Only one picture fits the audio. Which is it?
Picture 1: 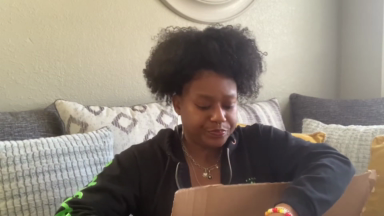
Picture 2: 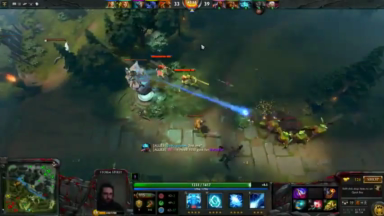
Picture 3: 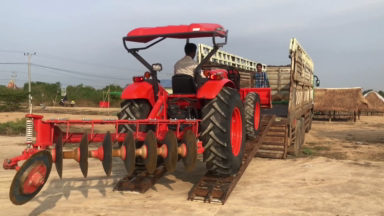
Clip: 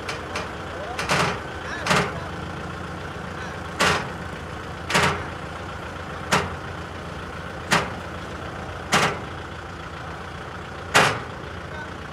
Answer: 3